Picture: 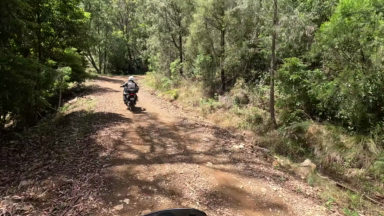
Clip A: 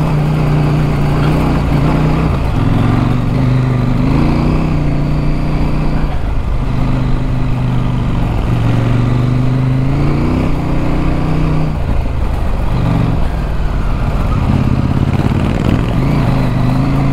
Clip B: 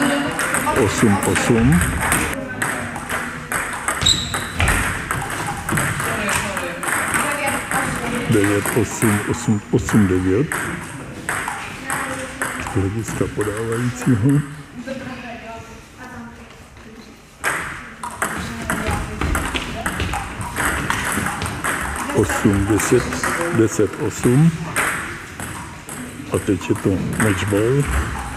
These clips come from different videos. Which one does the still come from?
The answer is A